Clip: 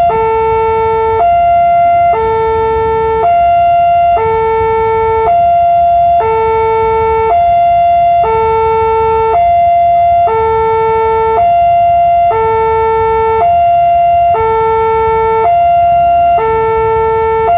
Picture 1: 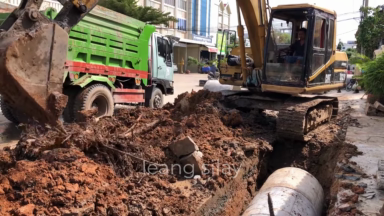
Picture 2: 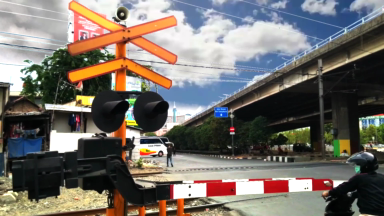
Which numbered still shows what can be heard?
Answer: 2